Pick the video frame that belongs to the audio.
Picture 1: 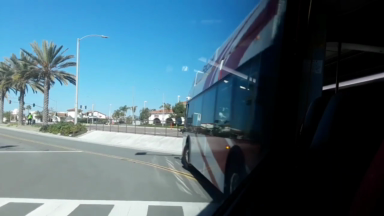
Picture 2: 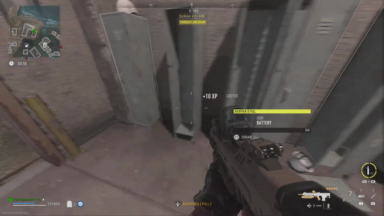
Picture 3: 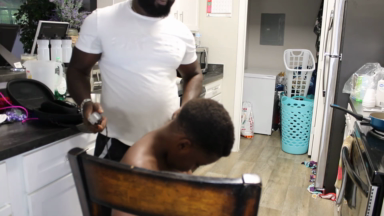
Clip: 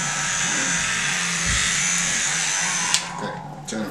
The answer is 3